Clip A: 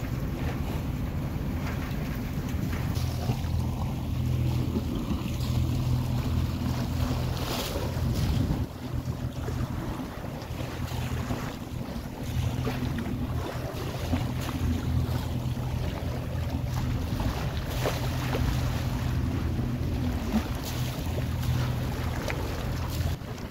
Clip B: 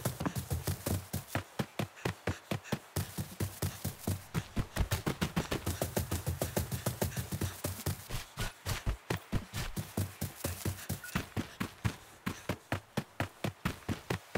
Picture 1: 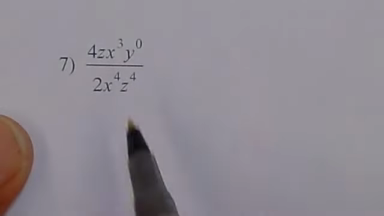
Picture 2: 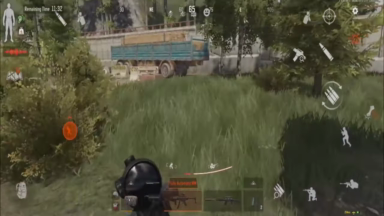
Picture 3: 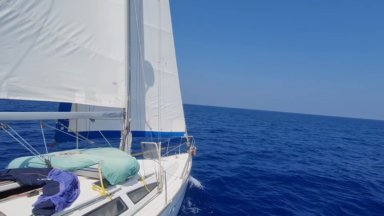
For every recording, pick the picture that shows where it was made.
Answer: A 3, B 2